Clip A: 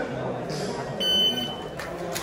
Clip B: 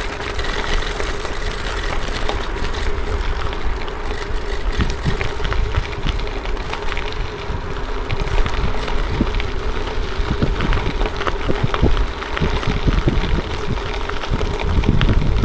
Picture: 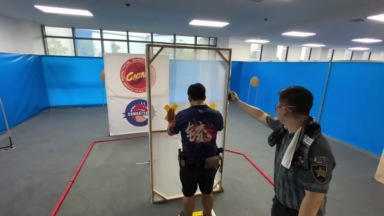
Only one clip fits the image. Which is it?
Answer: A